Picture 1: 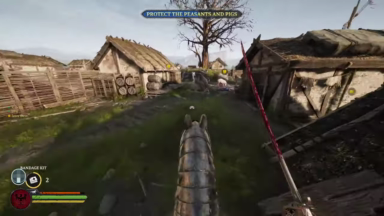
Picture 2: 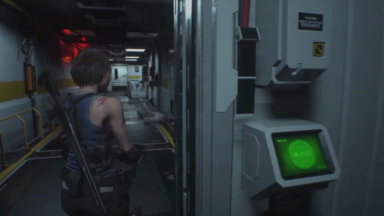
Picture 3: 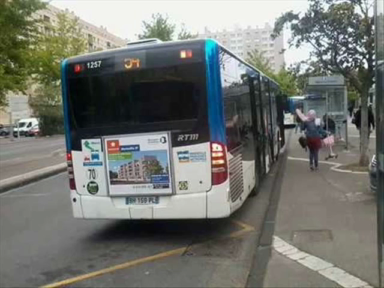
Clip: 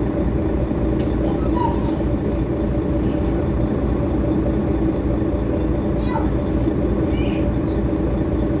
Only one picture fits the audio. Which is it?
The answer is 3